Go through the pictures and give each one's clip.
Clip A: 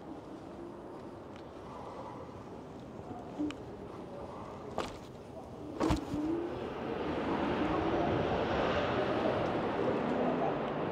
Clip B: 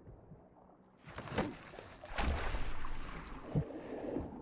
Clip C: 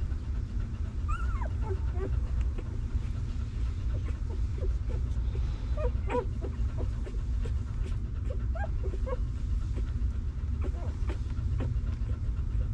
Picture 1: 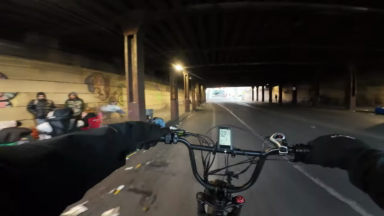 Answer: A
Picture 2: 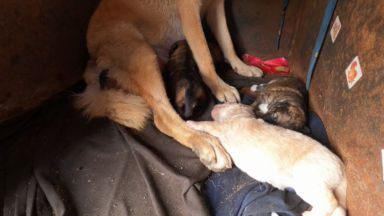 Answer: C